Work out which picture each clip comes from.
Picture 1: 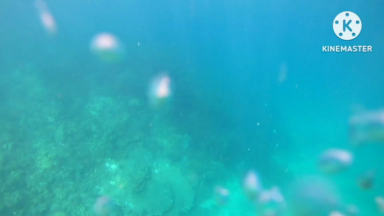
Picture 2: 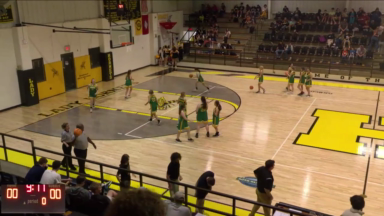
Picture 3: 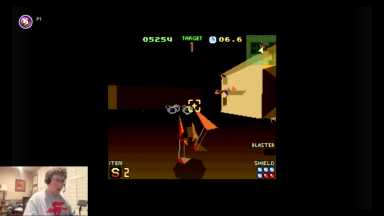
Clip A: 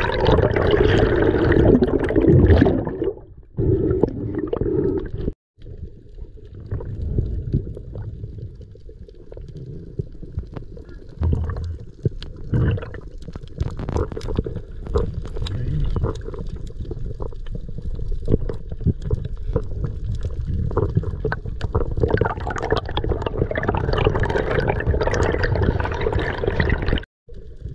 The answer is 1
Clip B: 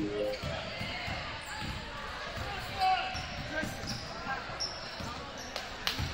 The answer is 2